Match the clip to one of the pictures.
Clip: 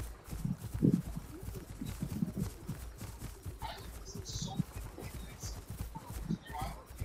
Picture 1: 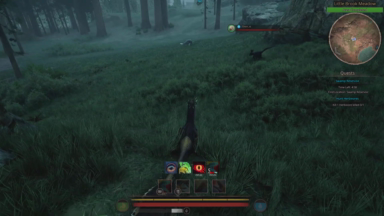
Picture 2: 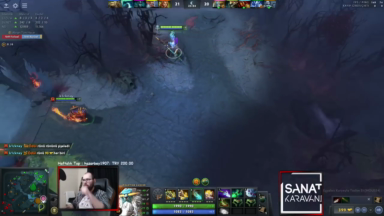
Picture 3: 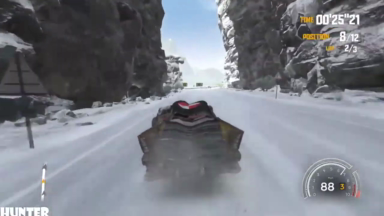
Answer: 1